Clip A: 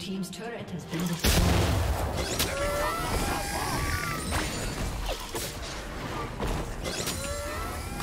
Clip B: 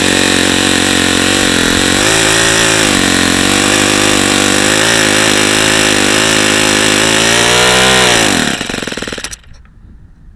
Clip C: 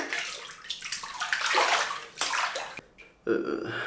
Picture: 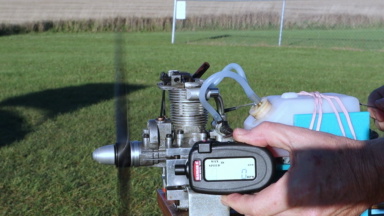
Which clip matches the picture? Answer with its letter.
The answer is B